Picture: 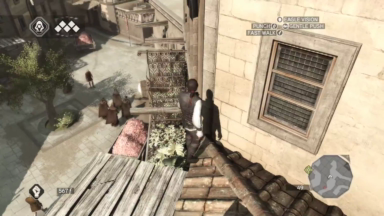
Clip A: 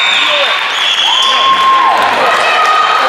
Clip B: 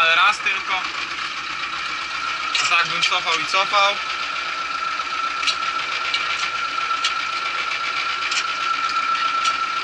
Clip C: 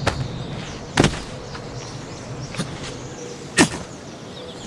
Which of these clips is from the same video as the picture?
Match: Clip C